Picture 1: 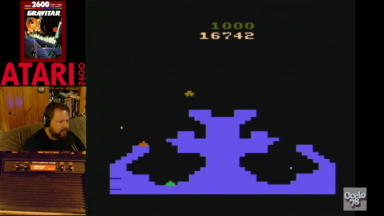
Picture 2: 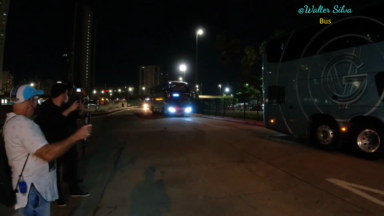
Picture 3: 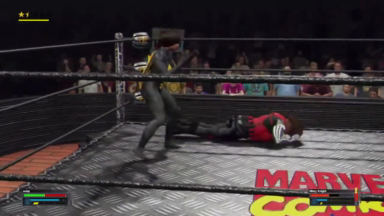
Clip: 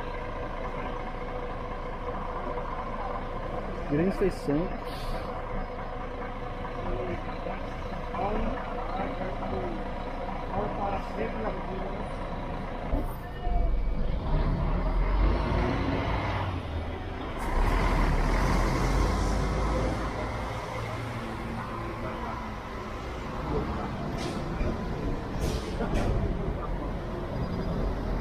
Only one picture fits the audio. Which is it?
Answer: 2